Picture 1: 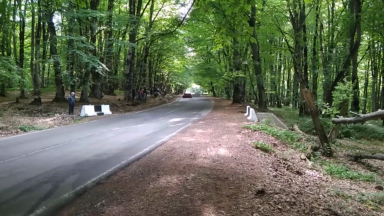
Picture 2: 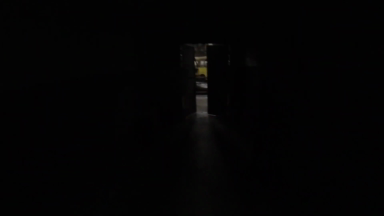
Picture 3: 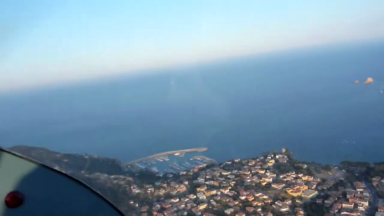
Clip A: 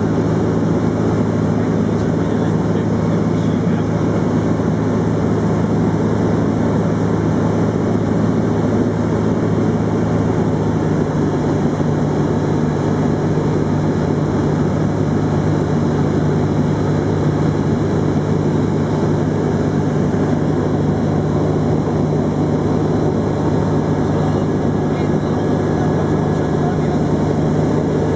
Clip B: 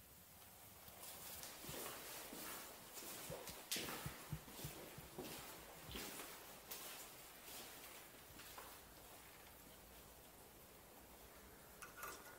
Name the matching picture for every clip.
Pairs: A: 3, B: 2